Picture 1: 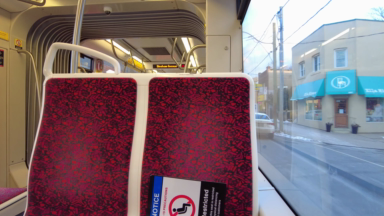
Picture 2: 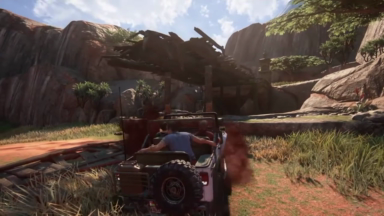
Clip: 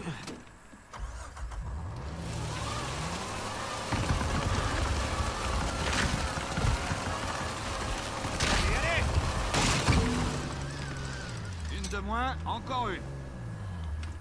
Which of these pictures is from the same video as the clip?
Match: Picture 2